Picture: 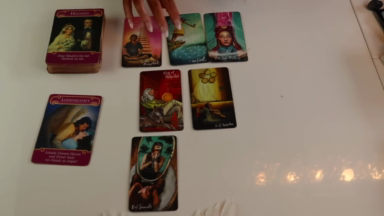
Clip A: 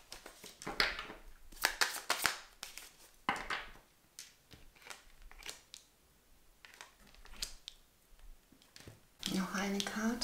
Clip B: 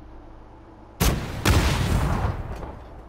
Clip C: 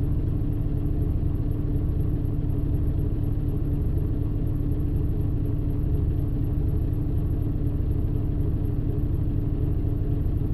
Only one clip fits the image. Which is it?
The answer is A